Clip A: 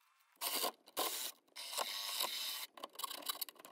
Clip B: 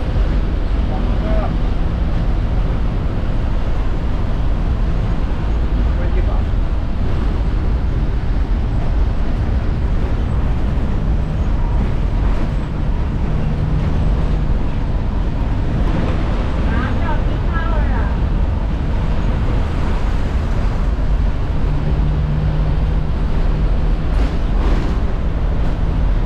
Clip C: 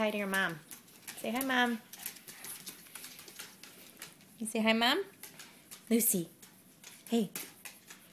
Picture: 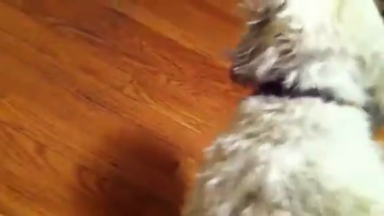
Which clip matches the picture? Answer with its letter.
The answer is C